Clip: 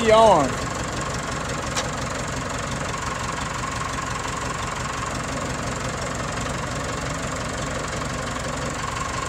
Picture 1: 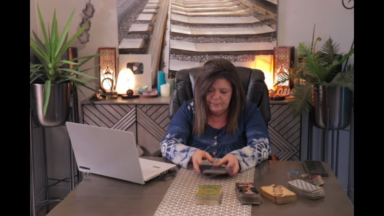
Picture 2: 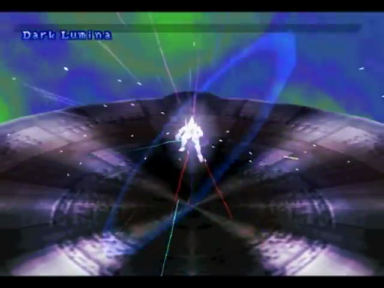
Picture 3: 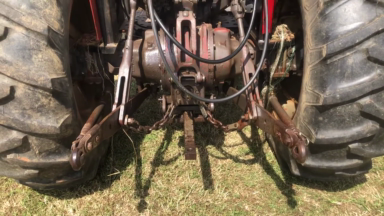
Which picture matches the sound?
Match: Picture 3